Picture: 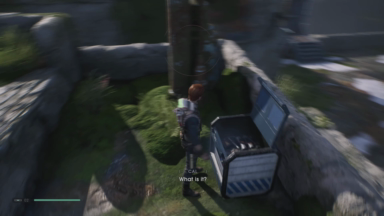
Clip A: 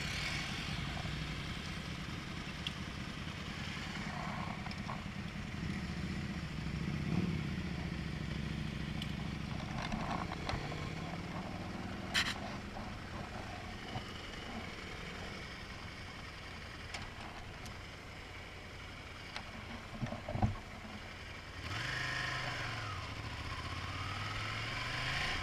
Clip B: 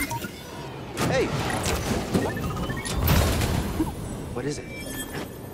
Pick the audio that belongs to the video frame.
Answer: B